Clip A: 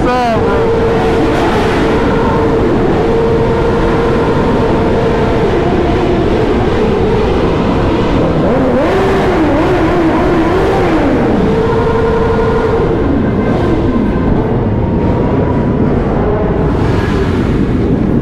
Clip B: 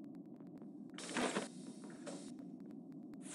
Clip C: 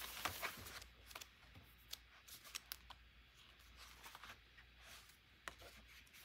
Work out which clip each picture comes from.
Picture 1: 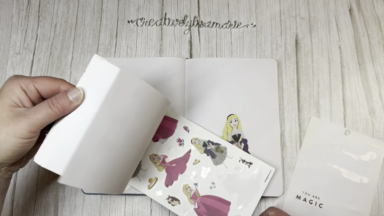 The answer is C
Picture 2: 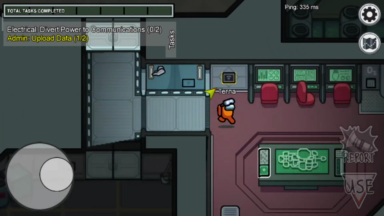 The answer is B